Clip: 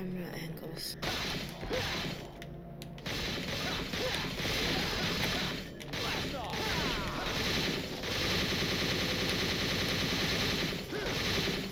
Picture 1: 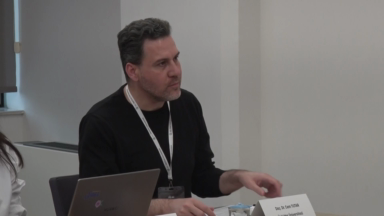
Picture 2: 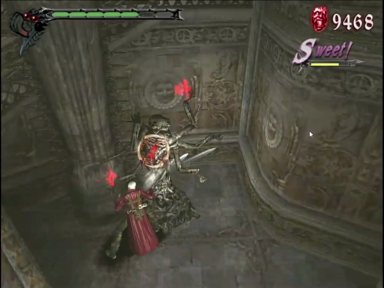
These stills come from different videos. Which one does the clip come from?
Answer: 2